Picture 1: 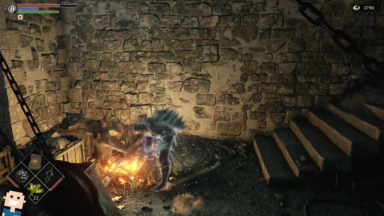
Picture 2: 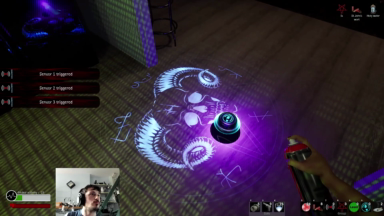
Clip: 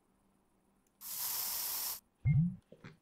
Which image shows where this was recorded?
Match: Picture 2